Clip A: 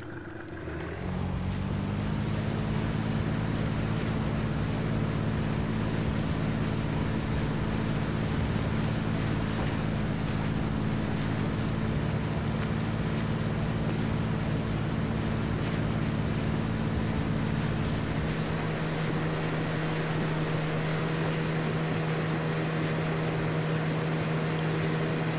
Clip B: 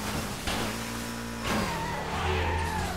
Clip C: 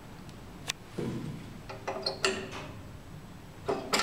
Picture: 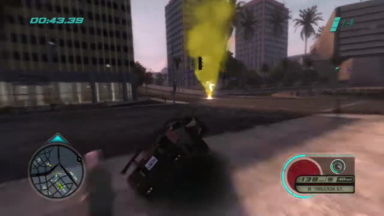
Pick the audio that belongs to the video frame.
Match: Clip B